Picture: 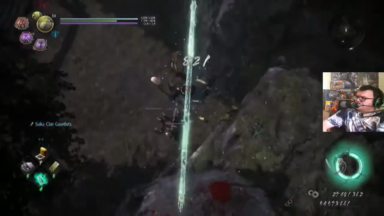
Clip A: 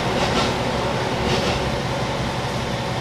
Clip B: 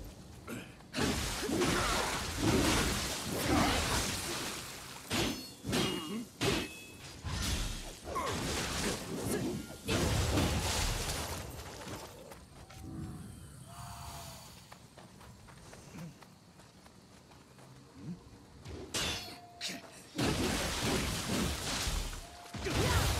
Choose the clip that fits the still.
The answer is B